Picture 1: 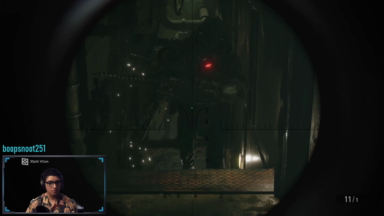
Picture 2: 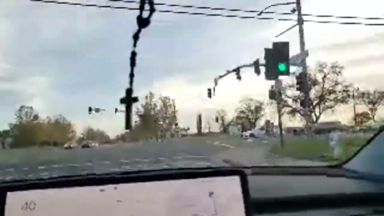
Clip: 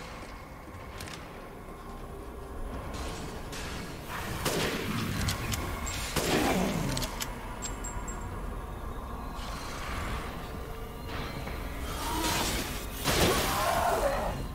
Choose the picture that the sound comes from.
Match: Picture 1